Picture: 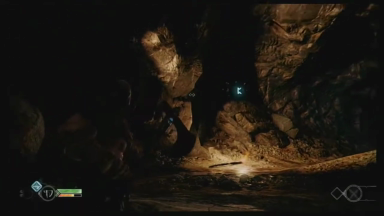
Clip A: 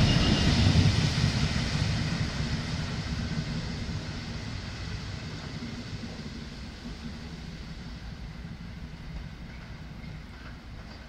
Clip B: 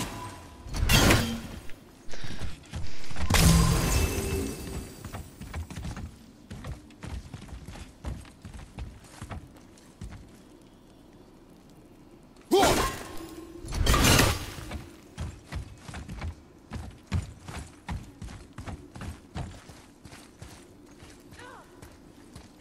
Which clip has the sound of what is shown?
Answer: B